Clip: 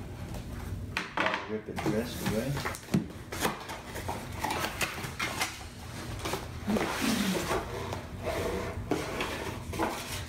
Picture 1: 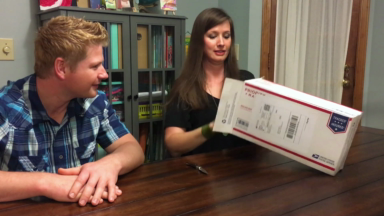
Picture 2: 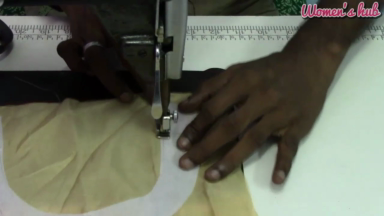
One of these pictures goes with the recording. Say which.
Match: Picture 1